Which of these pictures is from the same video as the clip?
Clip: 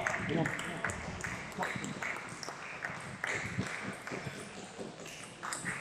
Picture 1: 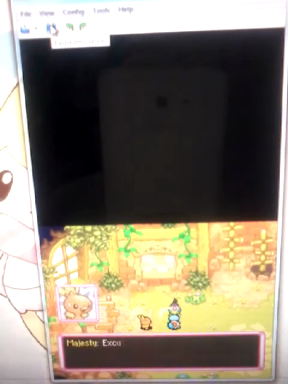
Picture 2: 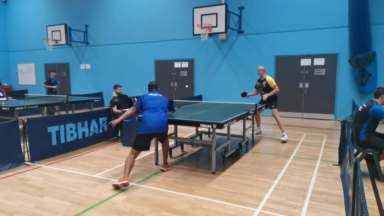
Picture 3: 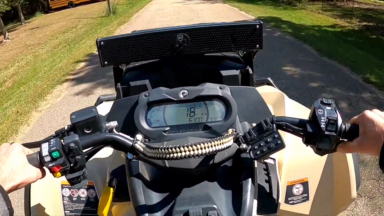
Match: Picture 2